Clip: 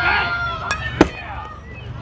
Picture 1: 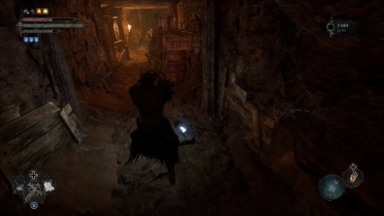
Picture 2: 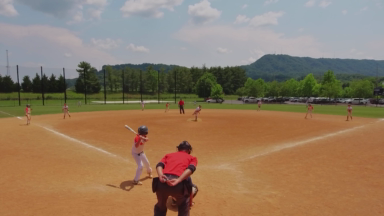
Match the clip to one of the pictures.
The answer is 2